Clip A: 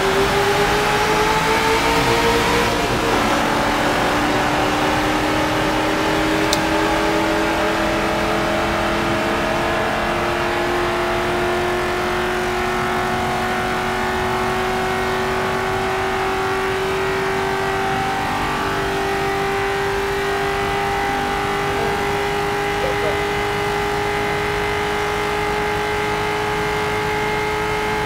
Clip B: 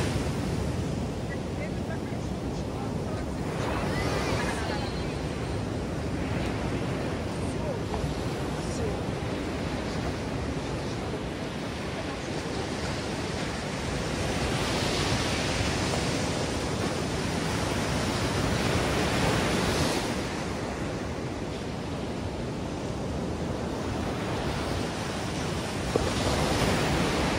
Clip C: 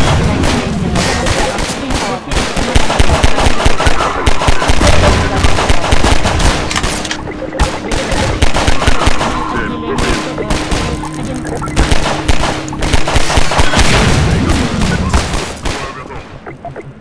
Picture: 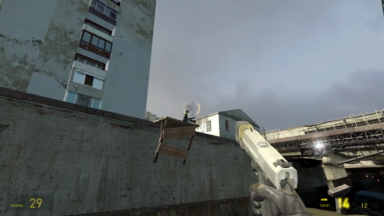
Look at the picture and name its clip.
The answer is C